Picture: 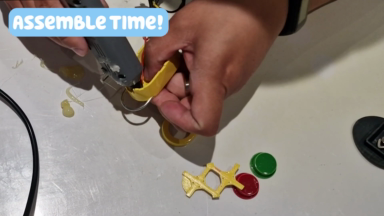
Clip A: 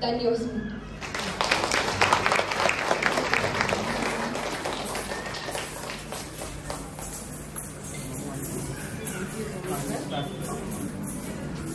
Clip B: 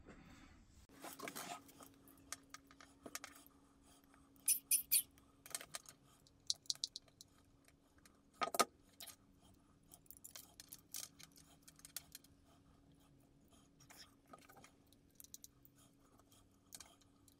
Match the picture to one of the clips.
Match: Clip B